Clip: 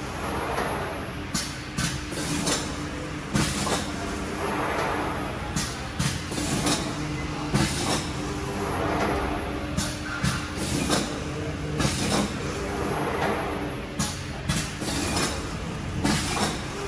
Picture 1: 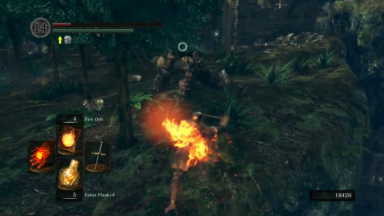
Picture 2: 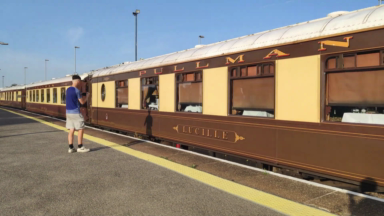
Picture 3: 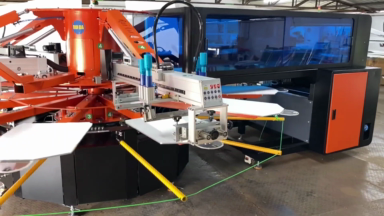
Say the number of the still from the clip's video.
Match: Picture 3